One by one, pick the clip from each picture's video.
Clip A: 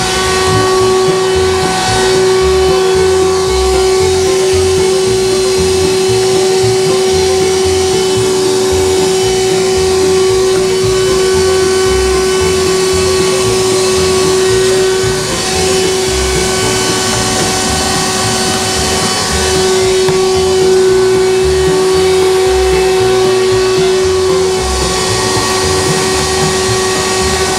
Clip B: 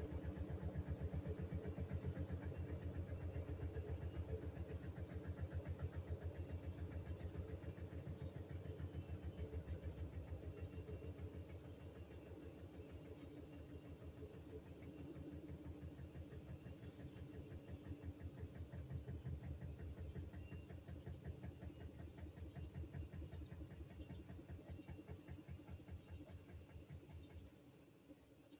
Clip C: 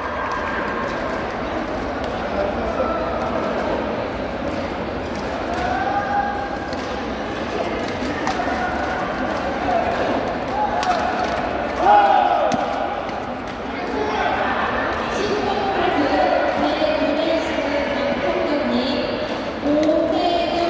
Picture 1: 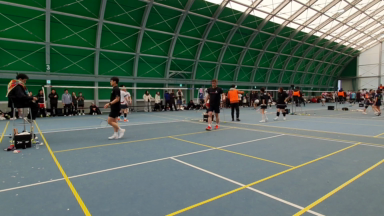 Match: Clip C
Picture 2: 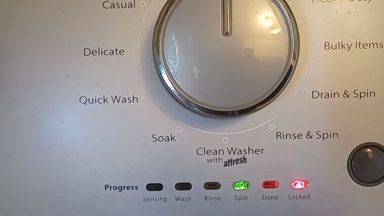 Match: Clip B